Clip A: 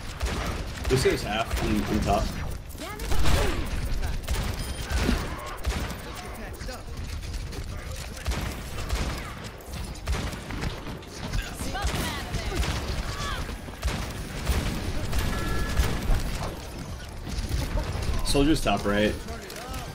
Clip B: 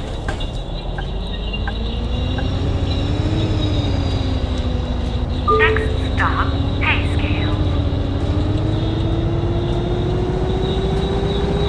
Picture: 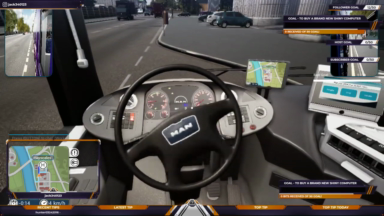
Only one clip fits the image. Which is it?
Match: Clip B